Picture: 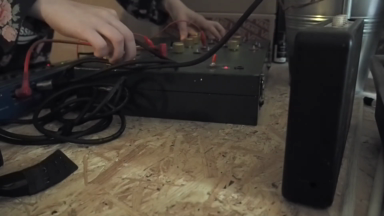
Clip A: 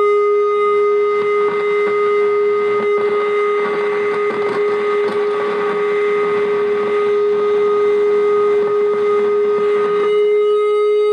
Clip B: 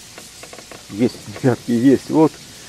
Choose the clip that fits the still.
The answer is A